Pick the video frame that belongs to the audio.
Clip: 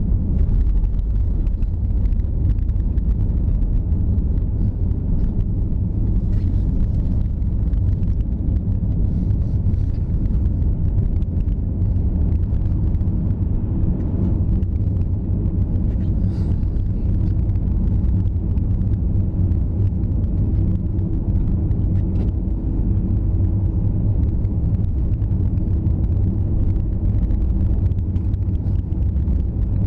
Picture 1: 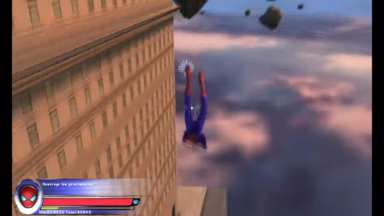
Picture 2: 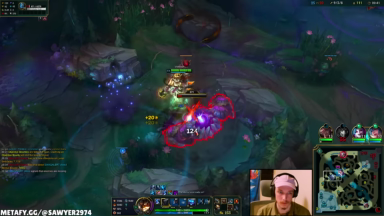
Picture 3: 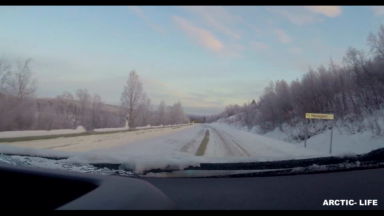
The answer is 3